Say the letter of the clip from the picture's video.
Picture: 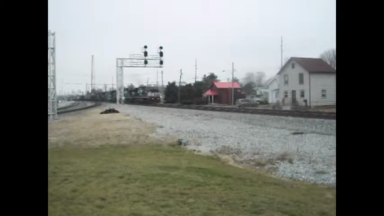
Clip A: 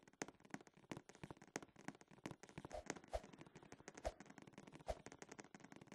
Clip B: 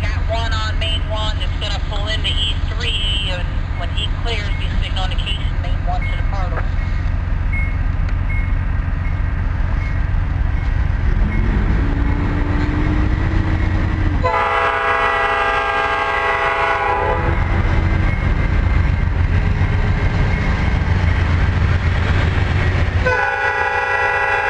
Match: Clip B